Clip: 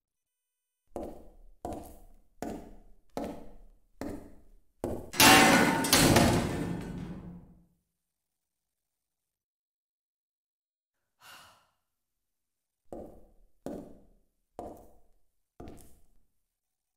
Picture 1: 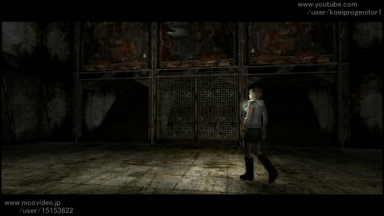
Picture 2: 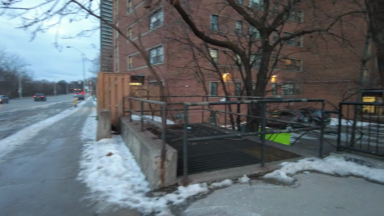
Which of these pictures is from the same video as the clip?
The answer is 1